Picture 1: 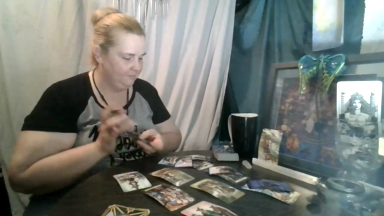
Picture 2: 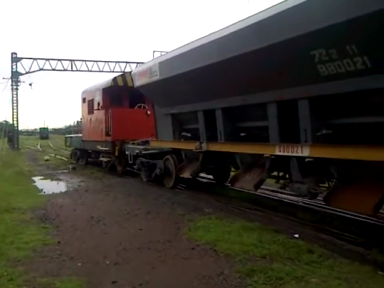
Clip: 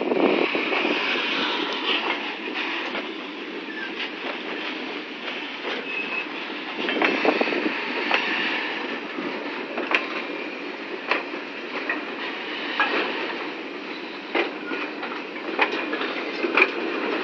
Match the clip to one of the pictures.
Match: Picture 2